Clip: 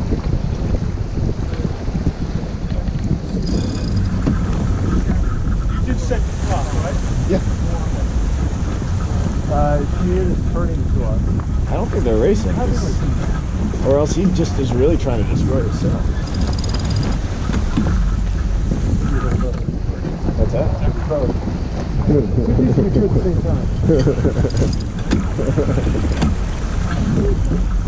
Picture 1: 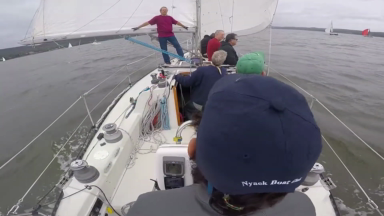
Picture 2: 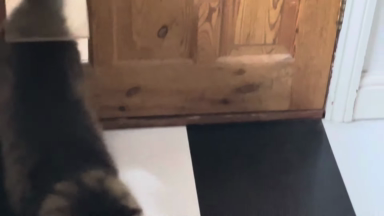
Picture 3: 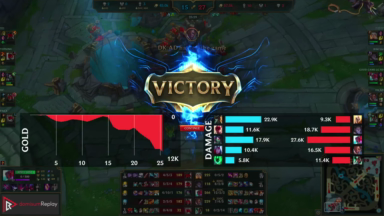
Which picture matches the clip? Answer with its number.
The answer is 1